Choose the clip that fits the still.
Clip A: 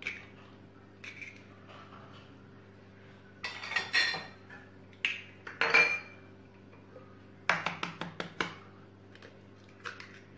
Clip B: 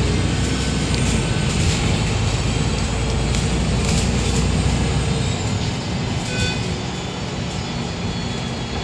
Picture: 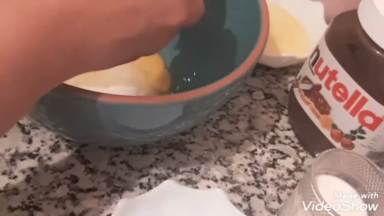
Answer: A